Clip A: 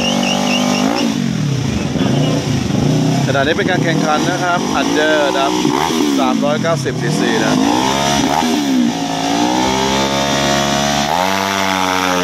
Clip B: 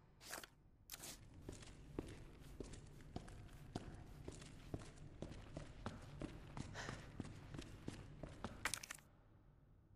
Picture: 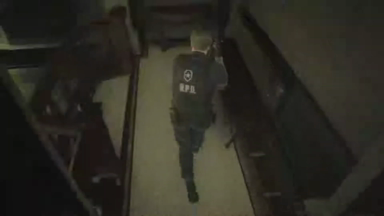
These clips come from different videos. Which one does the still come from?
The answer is B